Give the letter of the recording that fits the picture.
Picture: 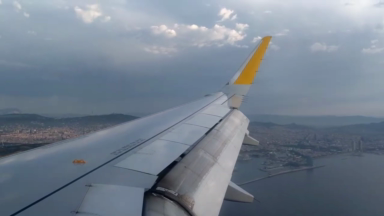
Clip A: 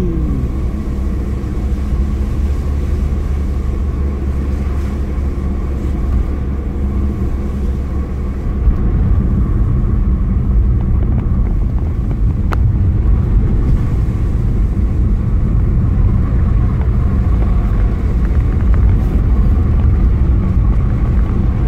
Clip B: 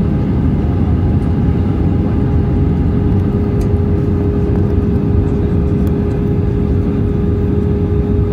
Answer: B